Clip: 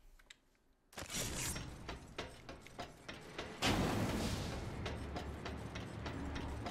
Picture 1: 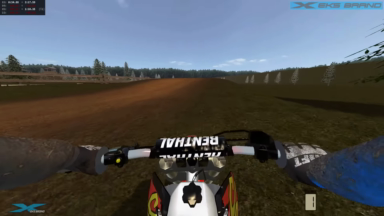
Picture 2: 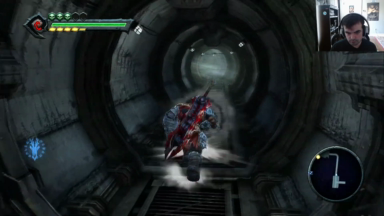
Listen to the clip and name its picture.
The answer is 2